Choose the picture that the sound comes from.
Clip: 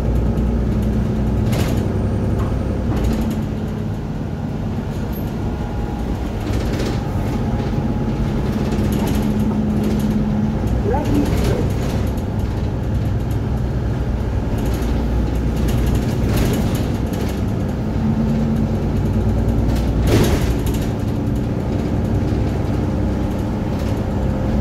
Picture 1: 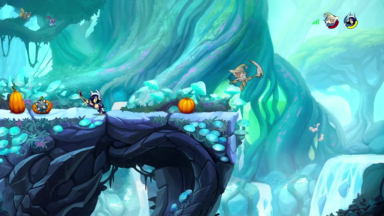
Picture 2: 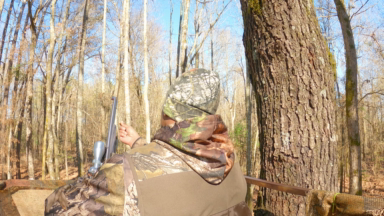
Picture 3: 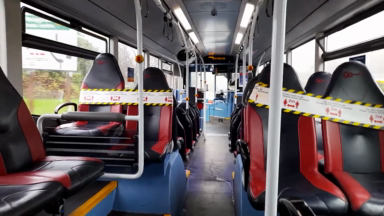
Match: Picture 3